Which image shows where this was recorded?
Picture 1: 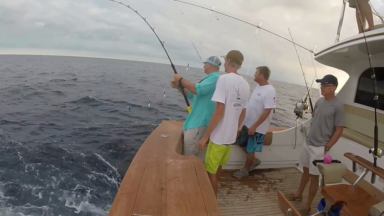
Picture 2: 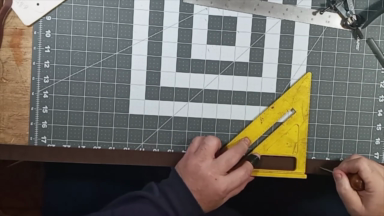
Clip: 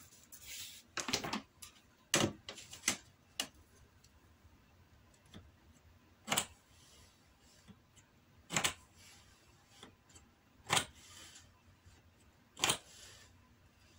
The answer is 2